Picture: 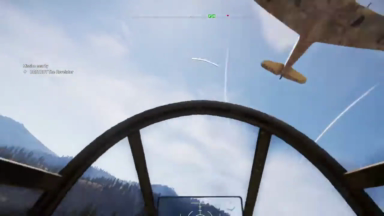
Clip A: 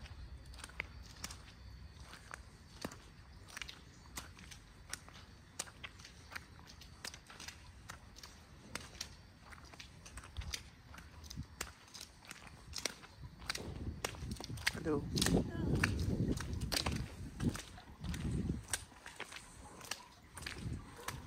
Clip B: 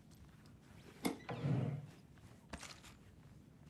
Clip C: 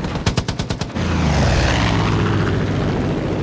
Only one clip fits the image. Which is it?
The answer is C